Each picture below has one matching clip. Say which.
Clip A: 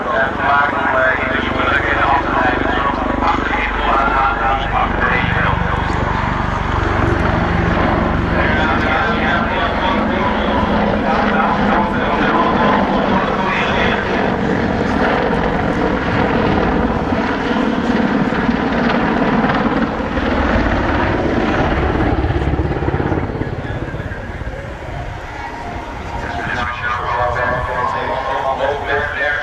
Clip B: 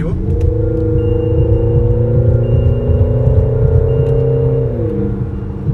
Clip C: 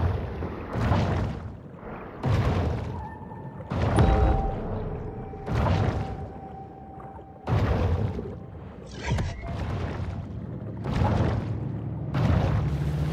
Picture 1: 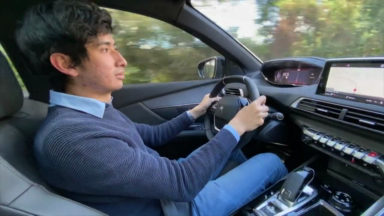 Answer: B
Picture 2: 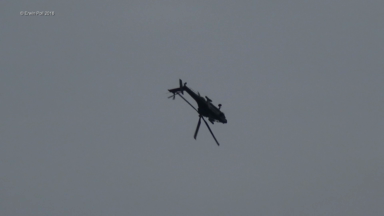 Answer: A